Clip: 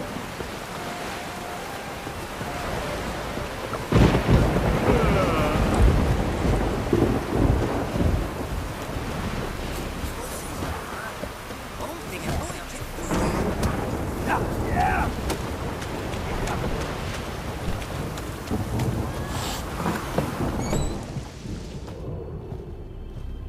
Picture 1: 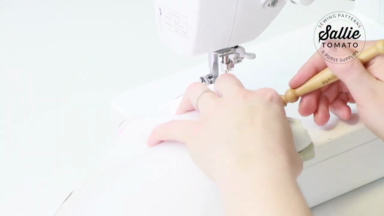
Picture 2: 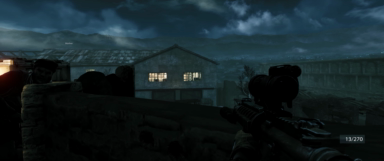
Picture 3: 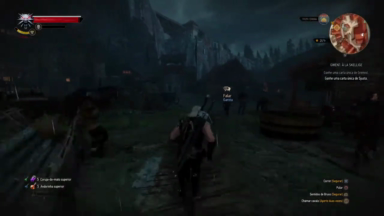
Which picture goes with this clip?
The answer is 3